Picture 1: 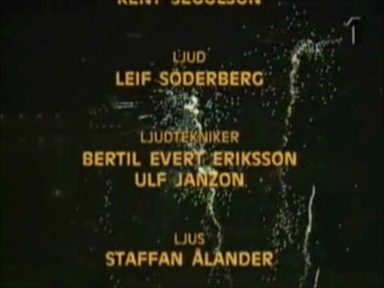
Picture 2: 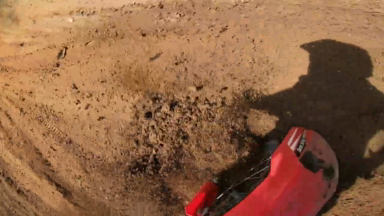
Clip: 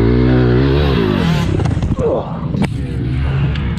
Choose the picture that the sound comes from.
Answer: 2